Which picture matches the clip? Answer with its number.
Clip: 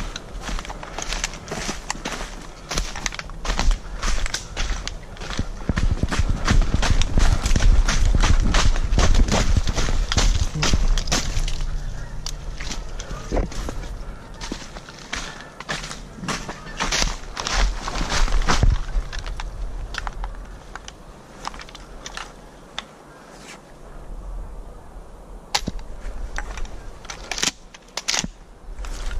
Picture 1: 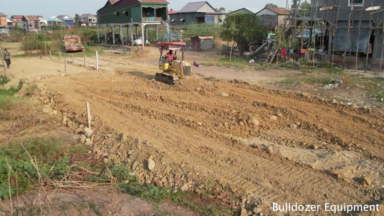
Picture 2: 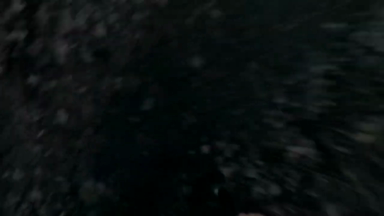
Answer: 2